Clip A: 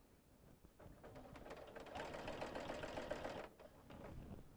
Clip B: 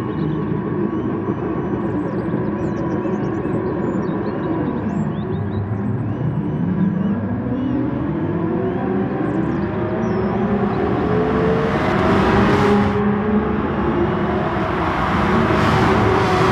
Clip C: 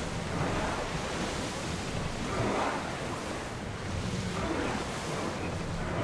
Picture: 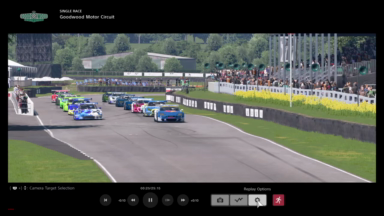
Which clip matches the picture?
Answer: B